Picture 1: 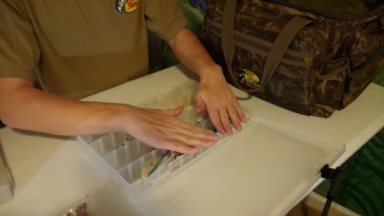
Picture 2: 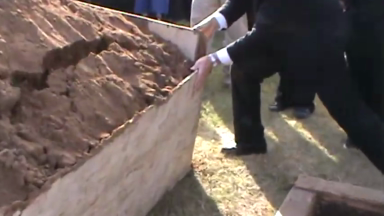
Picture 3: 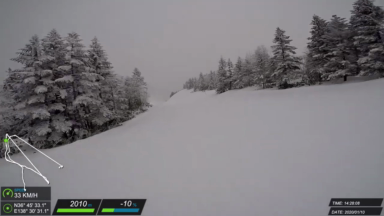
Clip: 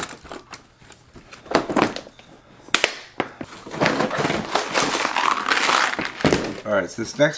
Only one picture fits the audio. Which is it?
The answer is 1